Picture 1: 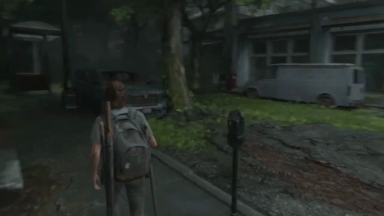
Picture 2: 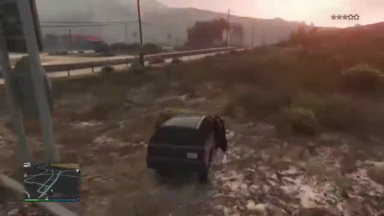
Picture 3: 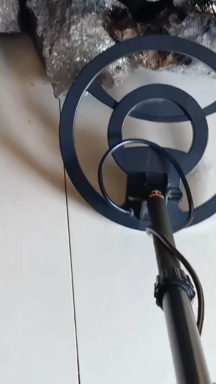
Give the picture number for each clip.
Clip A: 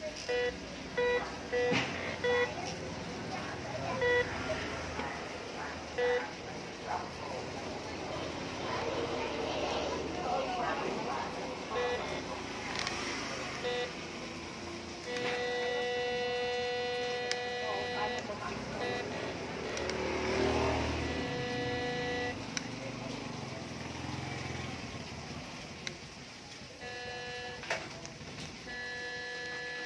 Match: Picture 3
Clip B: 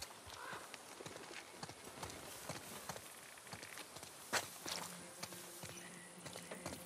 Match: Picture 1